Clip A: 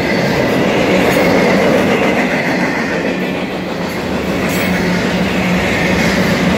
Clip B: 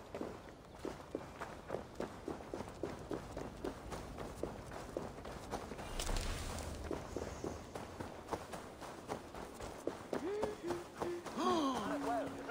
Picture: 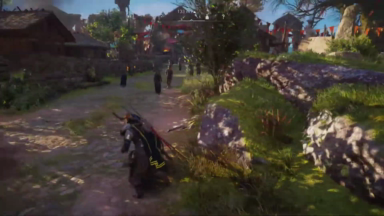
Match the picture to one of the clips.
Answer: B